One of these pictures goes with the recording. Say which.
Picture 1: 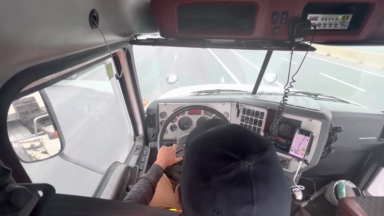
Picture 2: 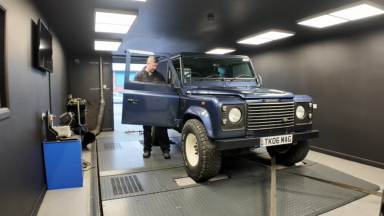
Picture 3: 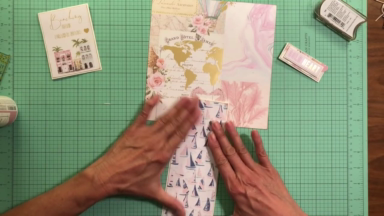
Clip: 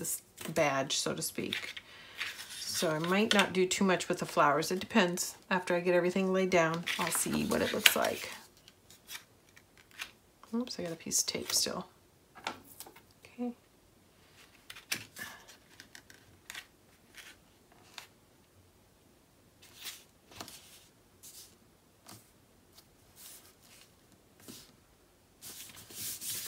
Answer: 3